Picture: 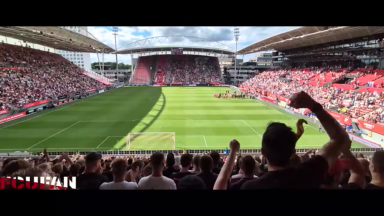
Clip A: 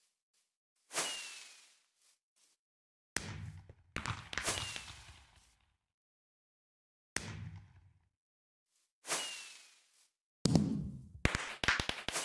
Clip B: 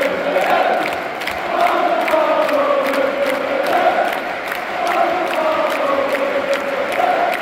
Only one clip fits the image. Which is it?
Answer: B